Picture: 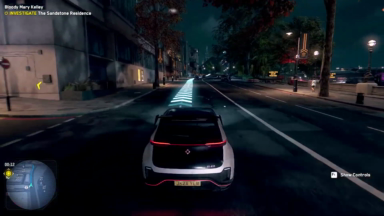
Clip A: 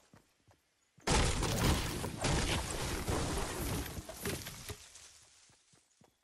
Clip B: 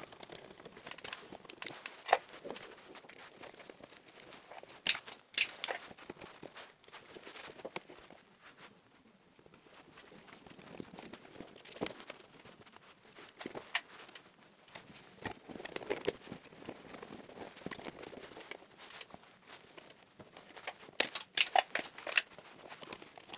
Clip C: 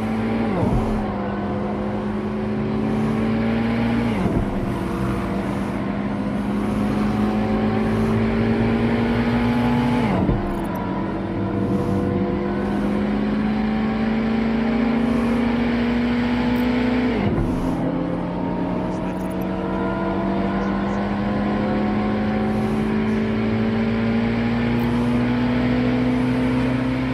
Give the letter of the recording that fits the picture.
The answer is C